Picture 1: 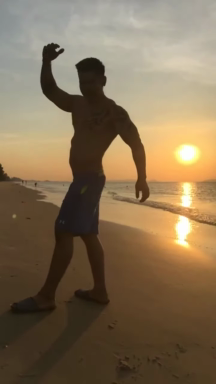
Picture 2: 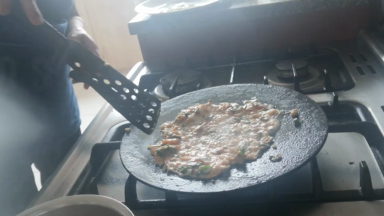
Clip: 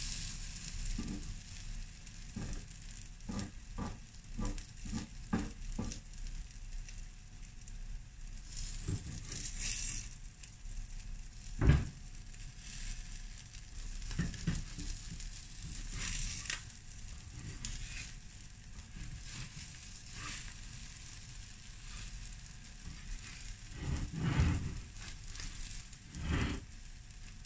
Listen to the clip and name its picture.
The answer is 2